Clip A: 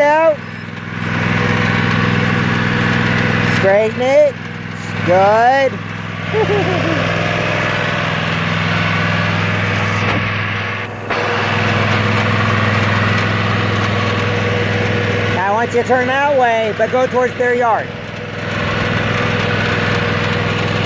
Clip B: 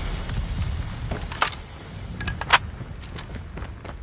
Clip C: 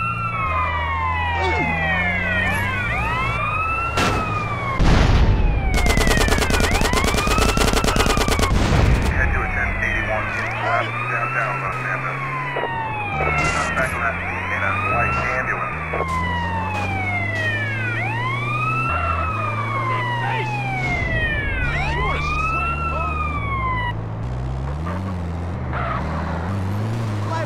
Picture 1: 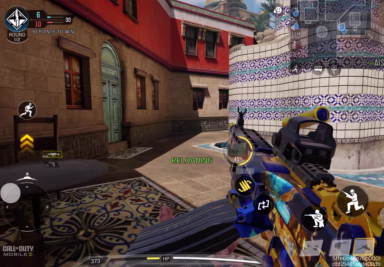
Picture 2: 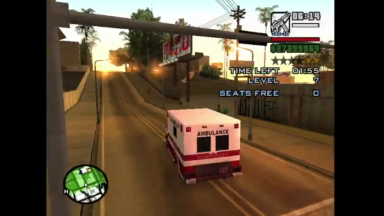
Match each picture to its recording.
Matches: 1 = B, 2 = C